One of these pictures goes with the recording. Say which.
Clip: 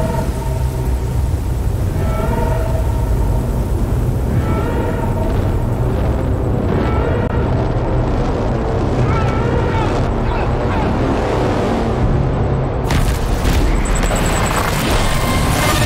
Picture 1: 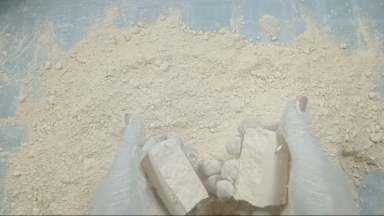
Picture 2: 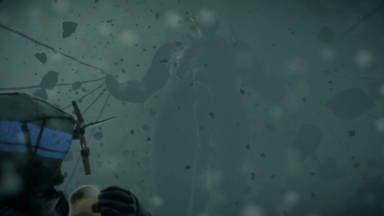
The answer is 2